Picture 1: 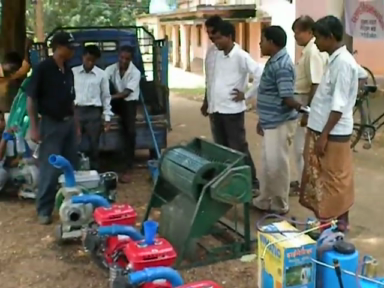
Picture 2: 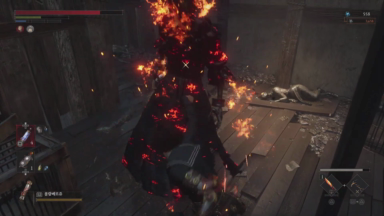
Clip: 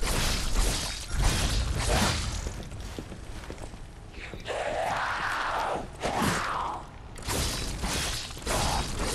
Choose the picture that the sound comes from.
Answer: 2